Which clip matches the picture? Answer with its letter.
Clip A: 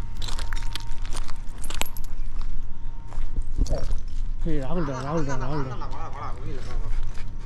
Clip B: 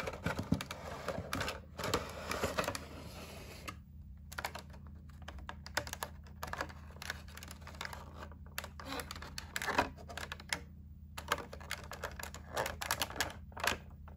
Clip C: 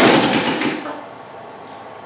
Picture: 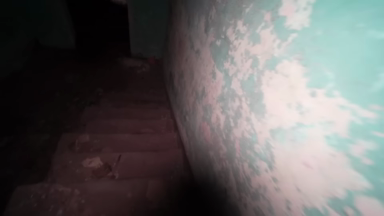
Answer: A